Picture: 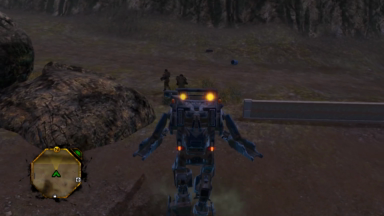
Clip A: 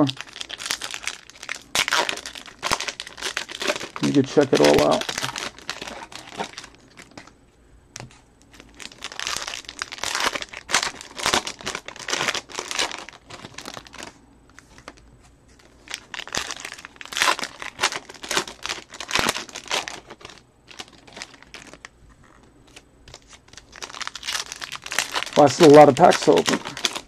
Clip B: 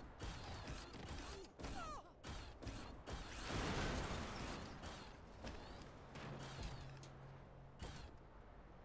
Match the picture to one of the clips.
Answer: B